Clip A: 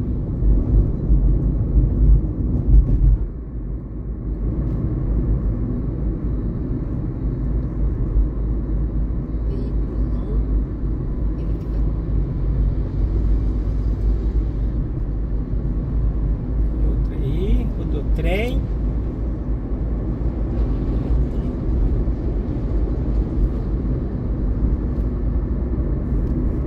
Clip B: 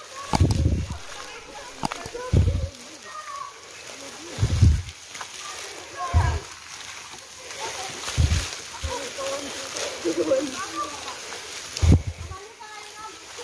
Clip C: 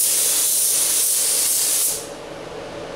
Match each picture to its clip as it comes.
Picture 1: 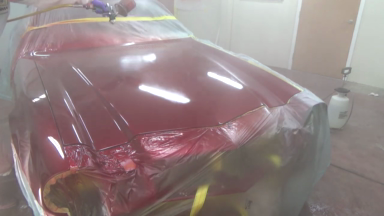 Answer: C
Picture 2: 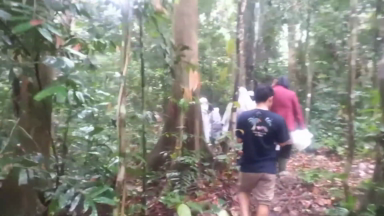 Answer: B